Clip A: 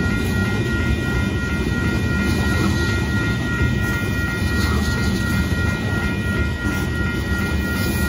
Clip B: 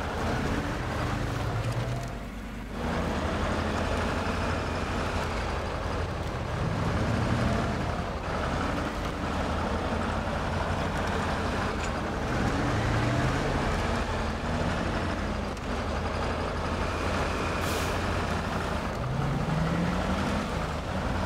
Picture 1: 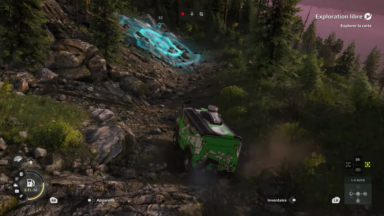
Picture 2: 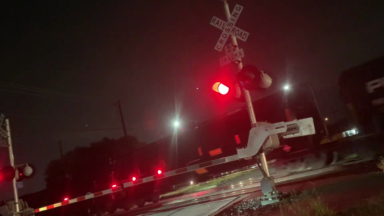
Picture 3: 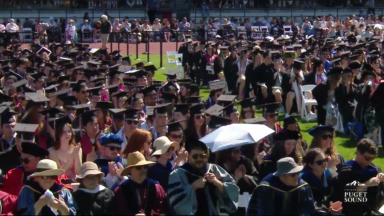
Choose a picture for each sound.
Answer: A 2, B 1